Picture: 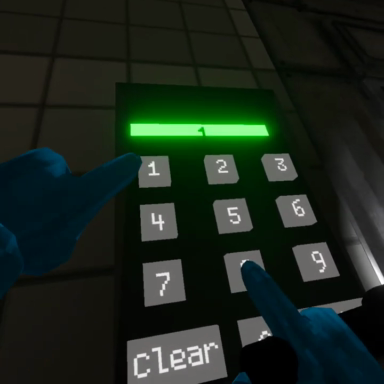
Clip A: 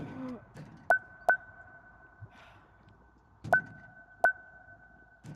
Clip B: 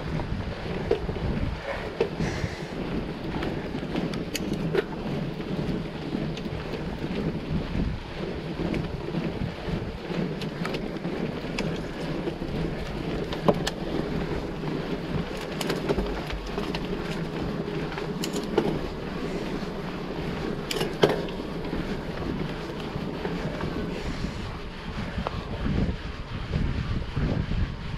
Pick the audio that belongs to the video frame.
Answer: A